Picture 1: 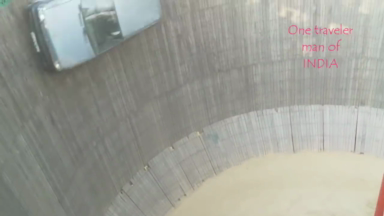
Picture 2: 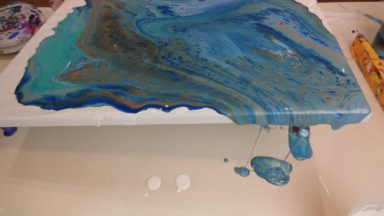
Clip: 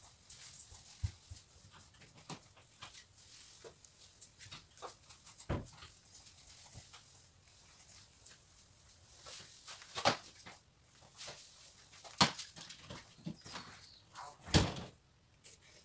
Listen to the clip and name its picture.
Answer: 2